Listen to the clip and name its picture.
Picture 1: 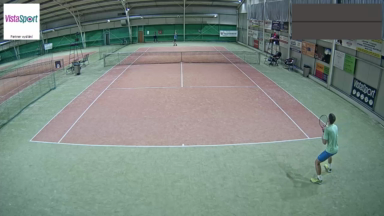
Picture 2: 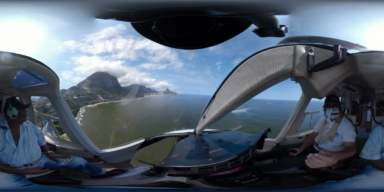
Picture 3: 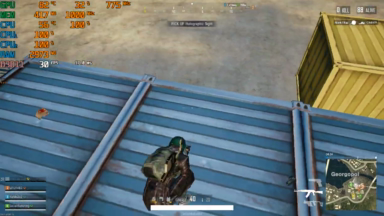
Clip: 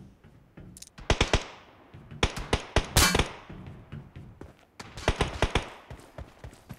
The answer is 3